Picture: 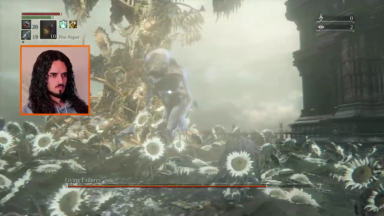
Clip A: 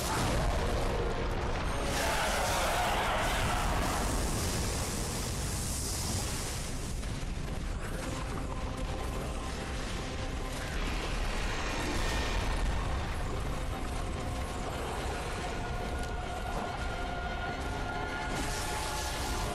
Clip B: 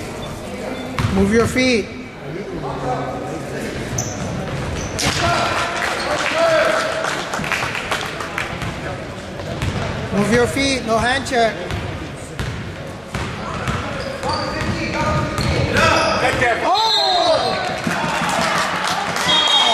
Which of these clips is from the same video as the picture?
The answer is A